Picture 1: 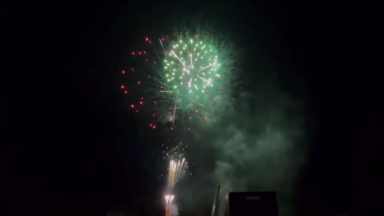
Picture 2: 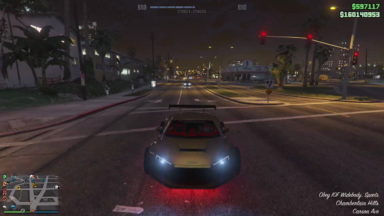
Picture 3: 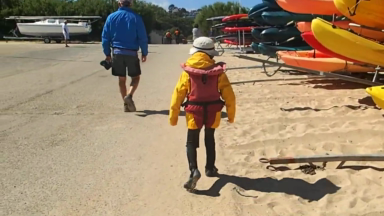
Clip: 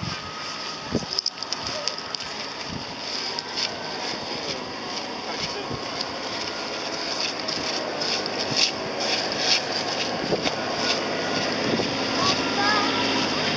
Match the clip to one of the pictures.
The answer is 3